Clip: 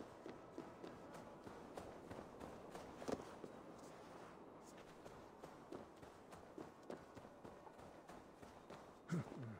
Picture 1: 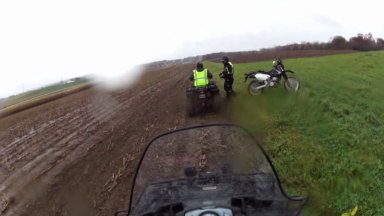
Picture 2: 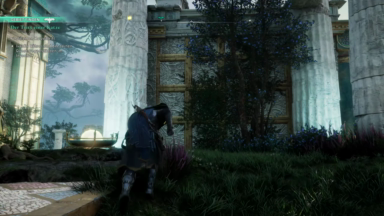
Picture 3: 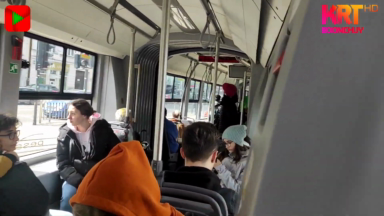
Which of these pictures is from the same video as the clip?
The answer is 2